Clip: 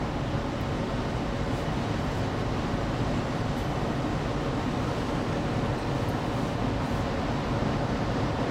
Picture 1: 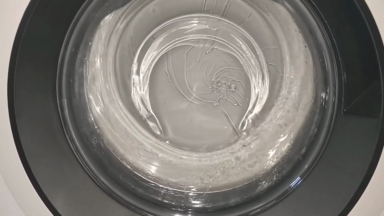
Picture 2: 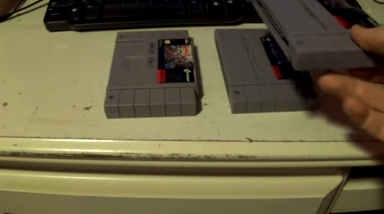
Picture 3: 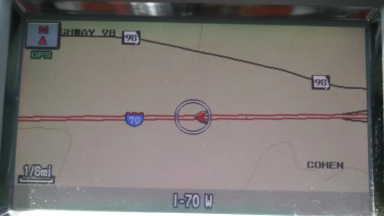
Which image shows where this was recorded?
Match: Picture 3